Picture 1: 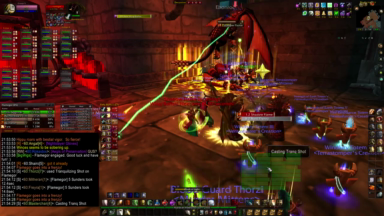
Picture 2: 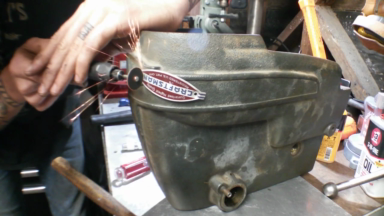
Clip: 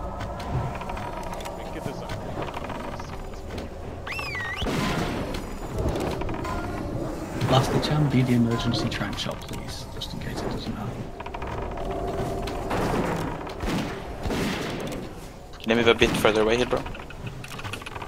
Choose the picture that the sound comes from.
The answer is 1